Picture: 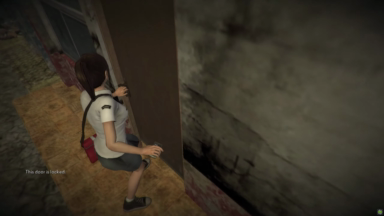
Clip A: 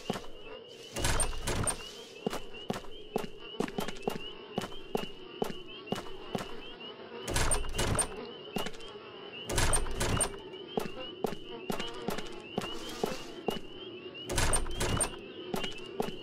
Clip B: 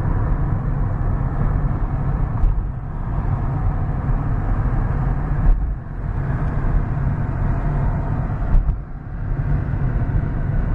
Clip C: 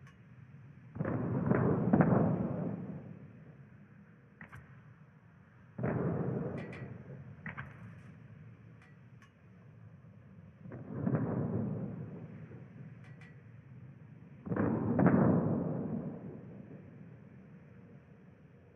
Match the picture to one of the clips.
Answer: A